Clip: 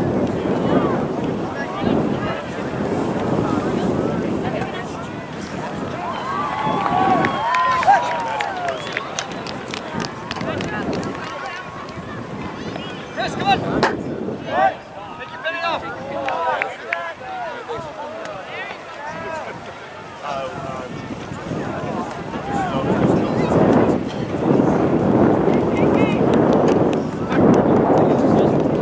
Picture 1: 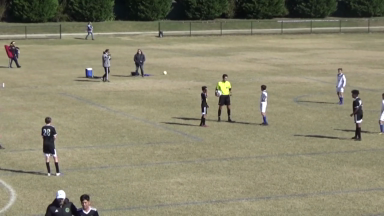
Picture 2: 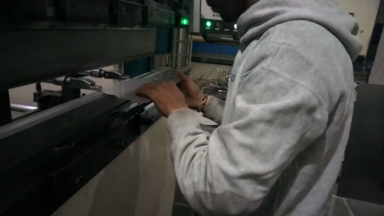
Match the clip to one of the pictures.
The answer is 1